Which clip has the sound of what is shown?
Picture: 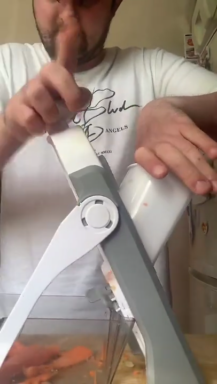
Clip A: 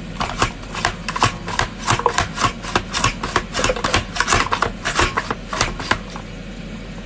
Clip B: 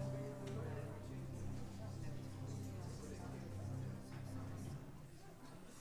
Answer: A